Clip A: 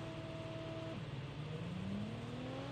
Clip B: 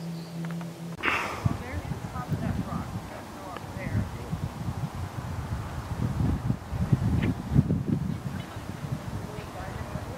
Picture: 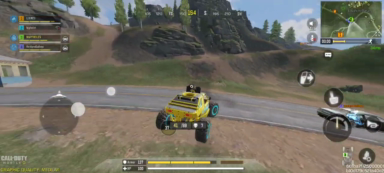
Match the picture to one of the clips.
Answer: A